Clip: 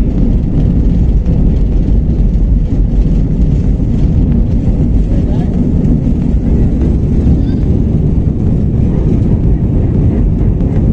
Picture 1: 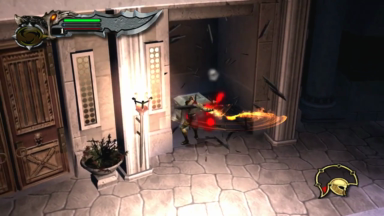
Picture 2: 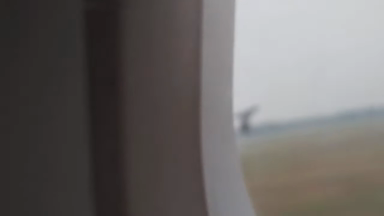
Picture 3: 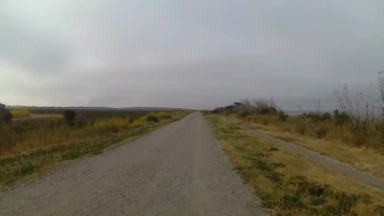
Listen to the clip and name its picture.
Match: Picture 2